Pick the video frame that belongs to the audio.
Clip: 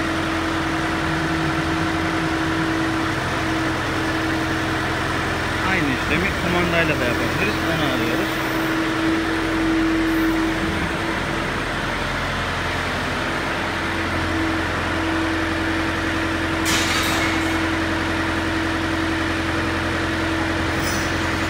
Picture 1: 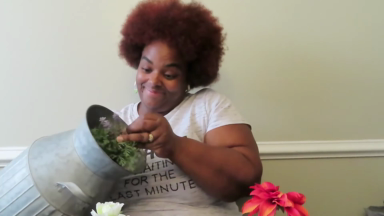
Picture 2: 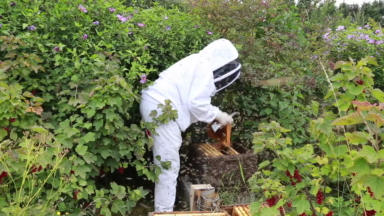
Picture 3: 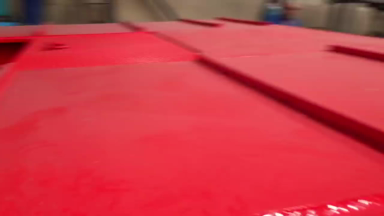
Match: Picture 3